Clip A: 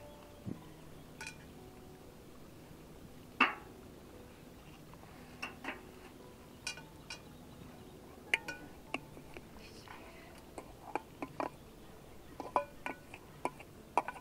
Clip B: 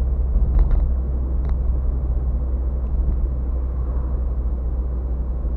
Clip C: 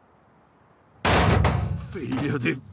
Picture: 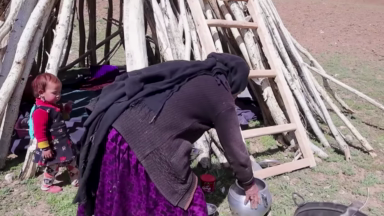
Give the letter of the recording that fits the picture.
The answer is A